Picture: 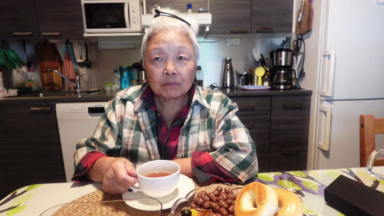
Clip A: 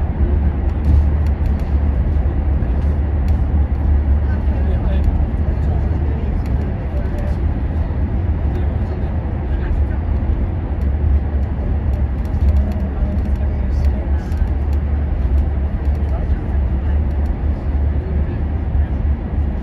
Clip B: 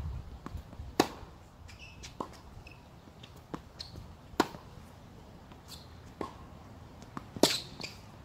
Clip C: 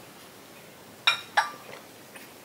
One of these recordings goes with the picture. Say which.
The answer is C